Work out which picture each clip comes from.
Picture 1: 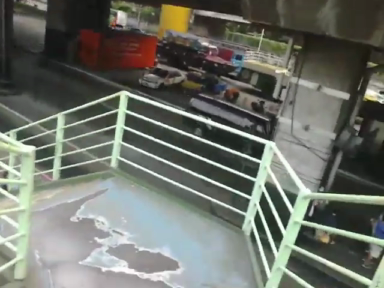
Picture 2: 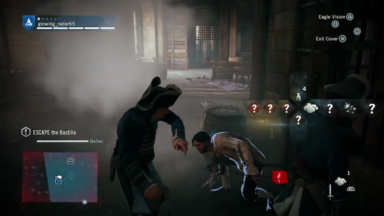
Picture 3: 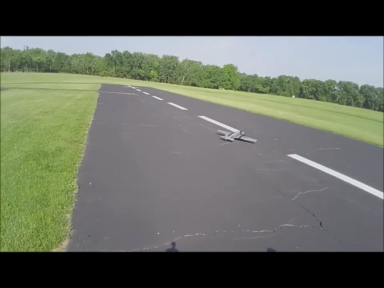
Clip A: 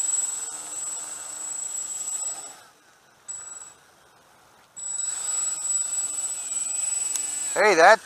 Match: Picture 3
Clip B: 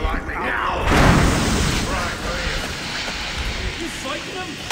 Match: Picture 2